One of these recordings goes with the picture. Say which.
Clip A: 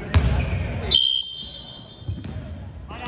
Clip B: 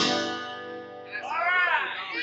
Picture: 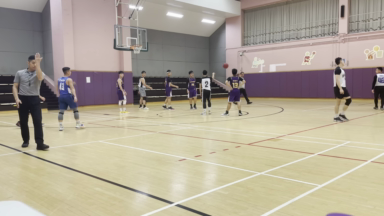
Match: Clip A